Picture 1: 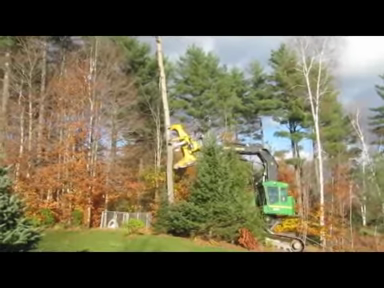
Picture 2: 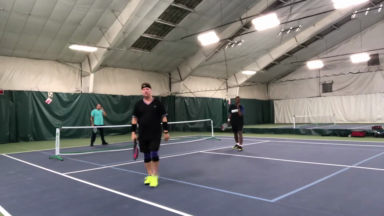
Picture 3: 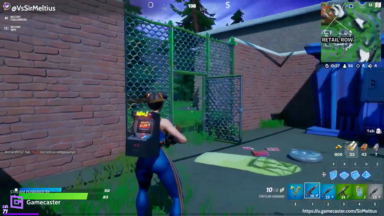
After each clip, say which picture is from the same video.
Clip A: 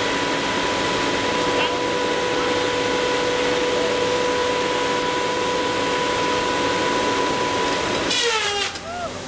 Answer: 1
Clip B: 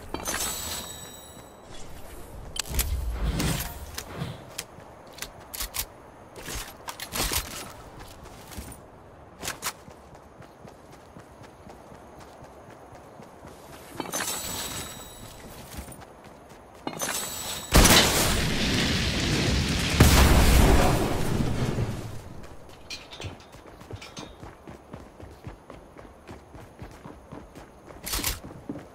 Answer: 3